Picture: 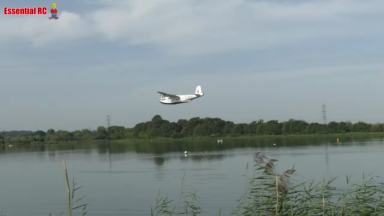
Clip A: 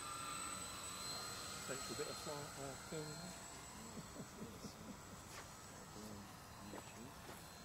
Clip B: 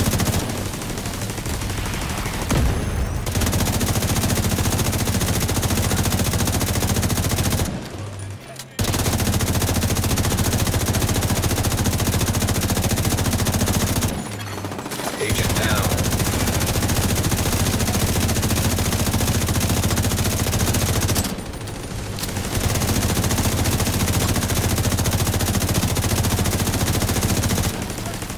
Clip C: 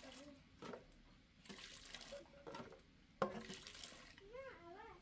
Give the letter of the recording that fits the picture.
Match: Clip A